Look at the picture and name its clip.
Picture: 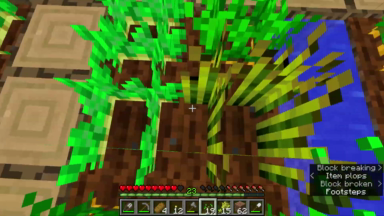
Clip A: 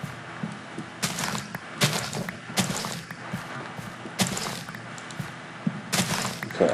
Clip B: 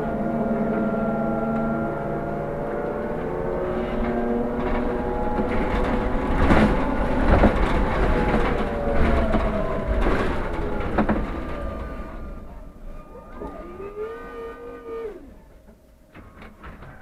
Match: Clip A